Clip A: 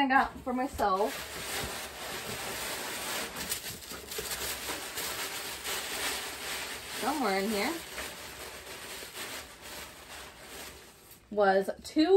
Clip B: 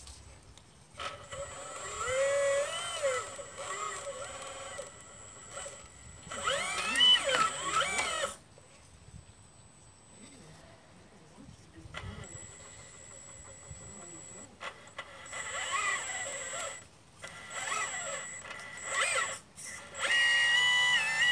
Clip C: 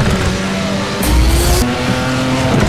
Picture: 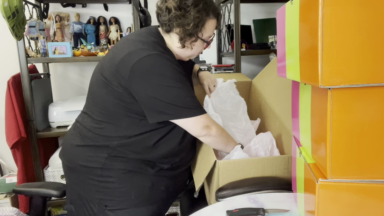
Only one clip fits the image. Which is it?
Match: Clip A